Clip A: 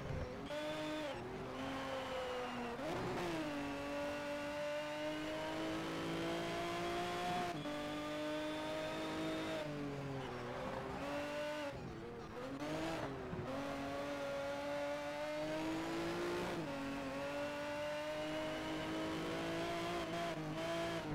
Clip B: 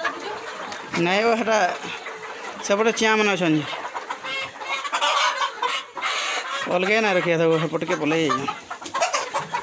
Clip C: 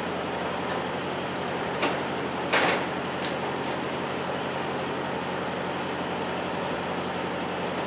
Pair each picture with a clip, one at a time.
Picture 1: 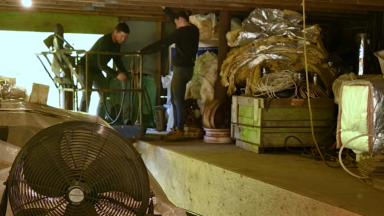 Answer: C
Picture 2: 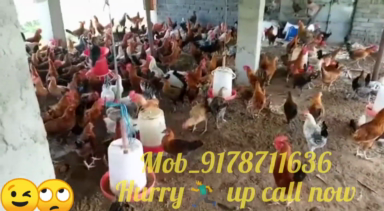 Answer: B